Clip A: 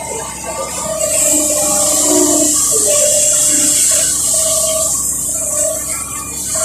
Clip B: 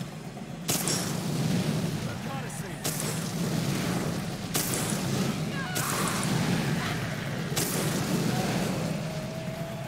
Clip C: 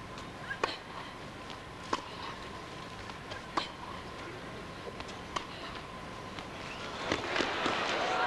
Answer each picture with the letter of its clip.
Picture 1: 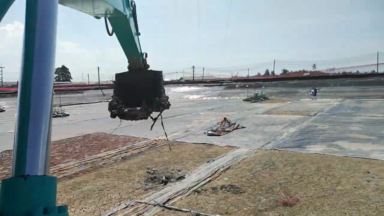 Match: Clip A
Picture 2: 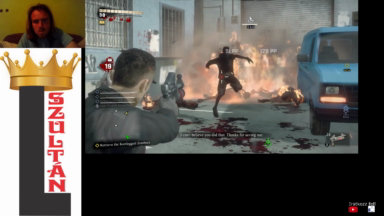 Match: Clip B